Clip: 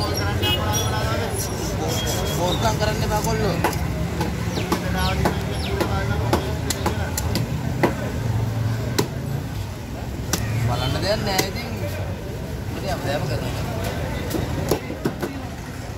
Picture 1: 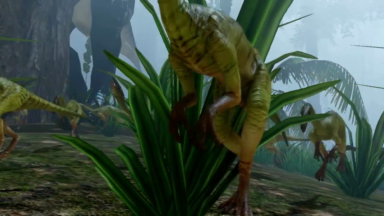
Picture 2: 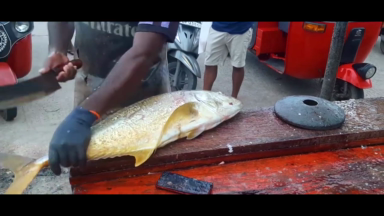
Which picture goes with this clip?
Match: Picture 2